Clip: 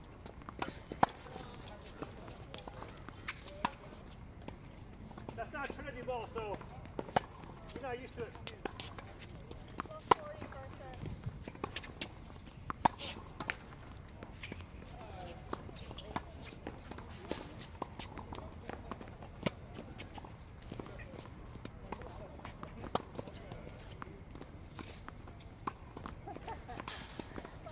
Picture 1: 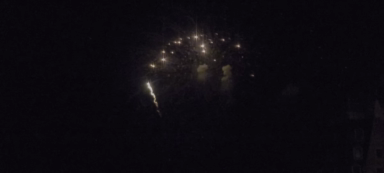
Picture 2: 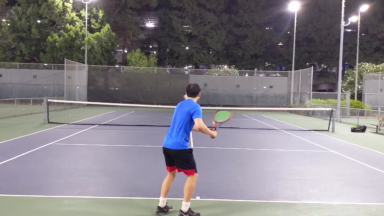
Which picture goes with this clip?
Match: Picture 2